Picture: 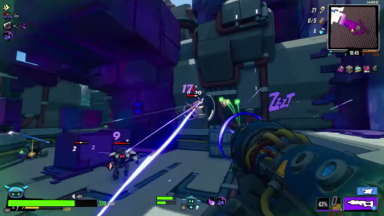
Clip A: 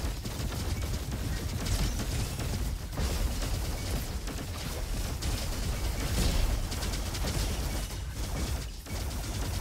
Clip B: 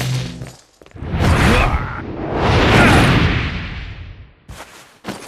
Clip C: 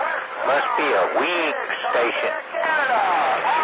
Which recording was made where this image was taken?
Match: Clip A